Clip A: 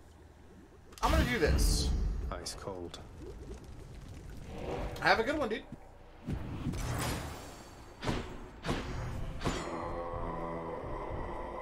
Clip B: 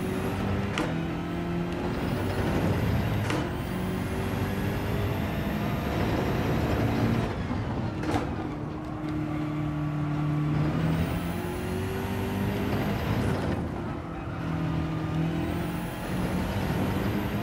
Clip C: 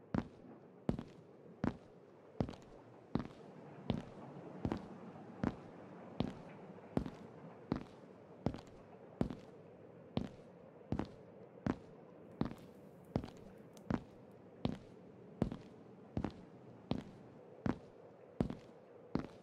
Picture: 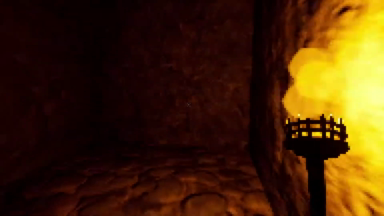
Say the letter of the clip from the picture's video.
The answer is C